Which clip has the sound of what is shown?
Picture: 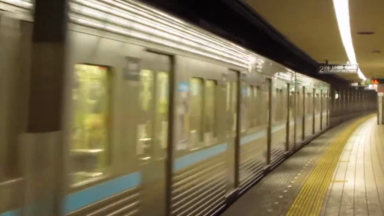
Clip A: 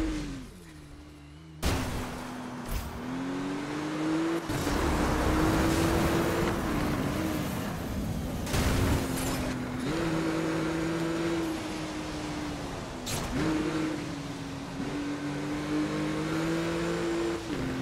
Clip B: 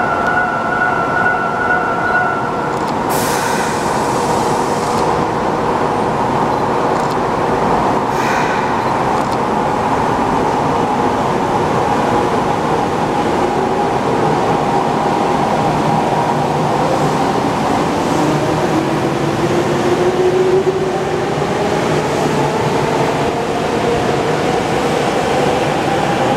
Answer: B